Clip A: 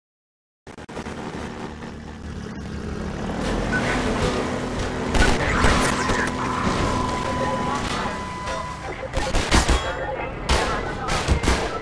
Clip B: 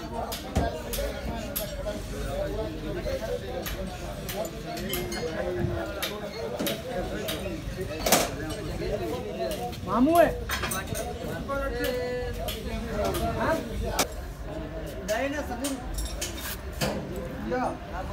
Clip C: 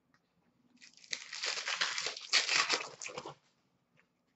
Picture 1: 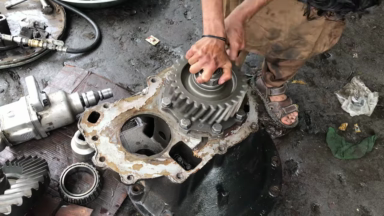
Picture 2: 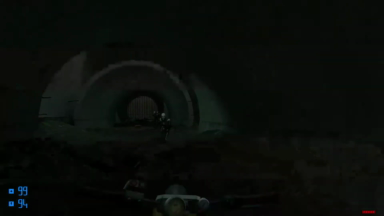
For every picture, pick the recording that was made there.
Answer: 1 B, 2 A